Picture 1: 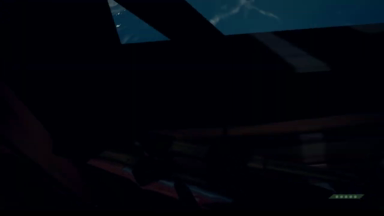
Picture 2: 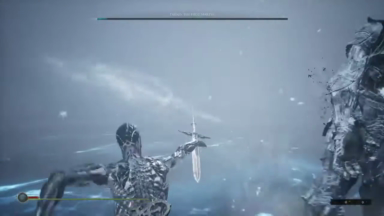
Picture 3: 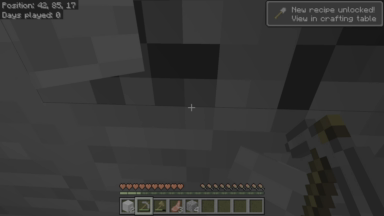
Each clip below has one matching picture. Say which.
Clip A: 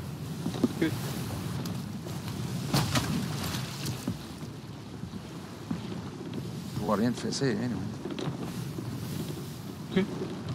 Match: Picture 1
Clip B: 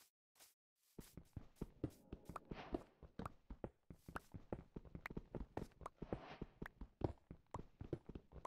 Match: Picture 3